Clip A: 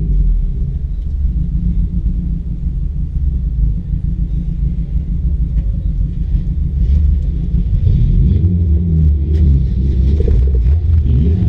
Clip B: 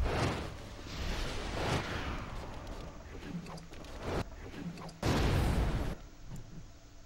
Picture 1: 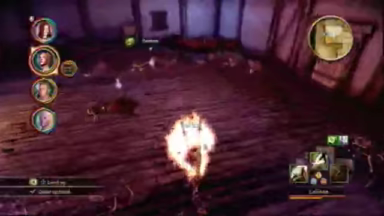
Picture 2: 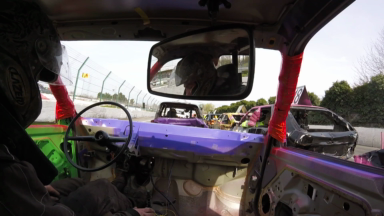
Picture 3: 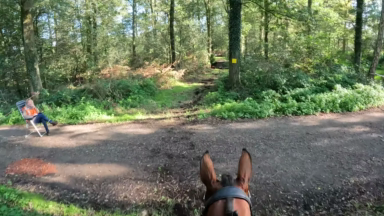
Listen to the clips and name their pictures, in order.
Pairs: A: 2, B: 1